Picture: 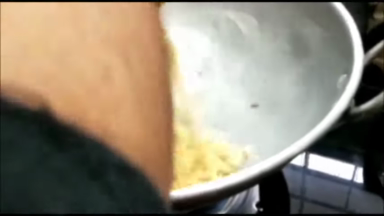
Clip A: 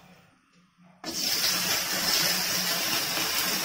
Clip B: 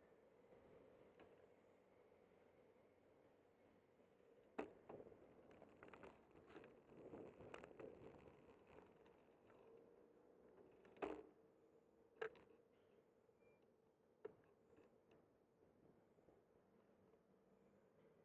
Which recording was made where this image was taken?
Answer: A